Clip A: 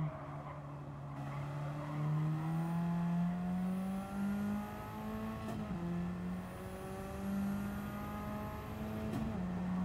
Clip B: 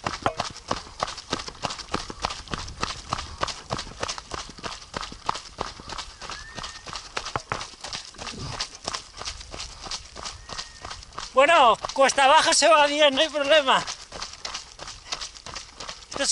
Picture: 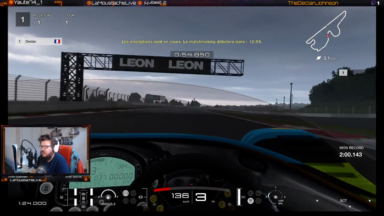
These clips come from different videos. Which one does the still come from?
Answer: A